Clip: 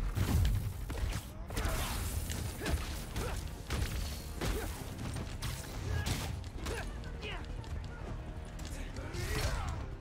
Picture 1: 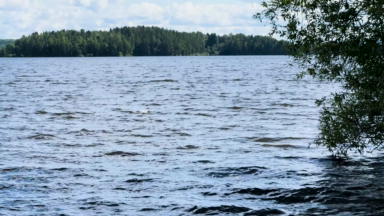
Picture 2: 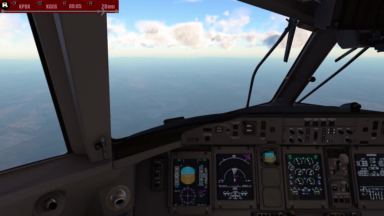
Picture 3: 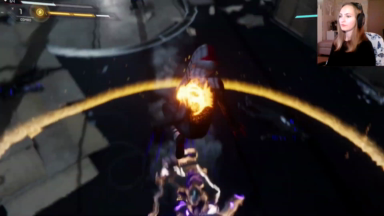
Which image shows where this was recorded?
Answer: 3